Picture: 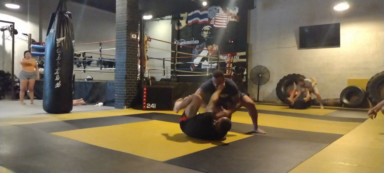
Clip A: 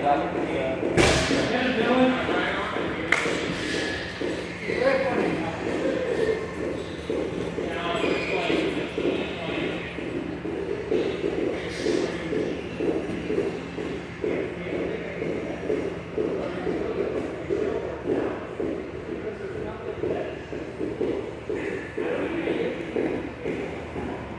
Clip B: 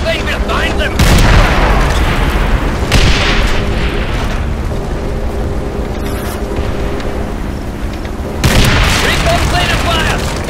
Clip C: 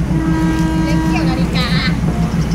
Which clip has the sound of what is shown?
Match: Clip A